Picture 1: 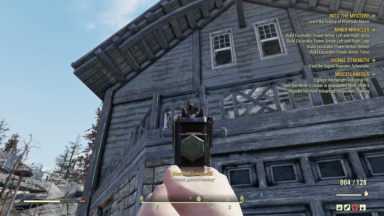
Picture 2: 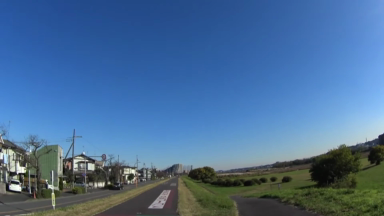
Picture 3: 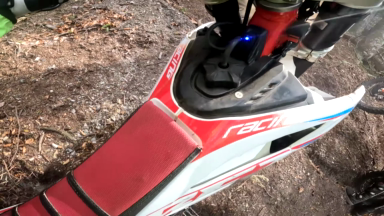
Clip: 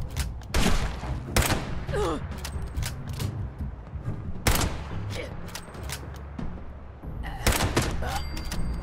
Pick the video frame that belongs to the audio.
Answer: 1